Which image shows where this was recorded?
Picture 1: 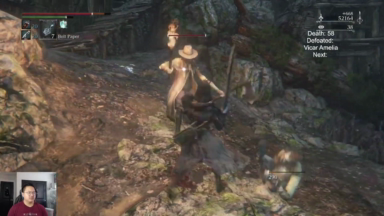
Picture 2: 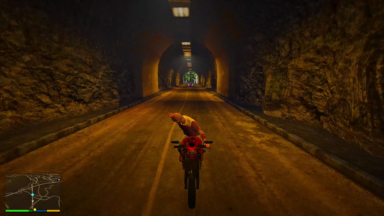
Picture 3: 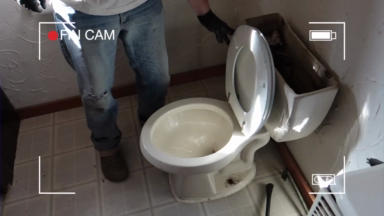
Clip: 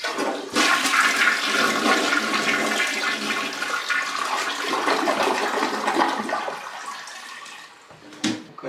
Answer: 3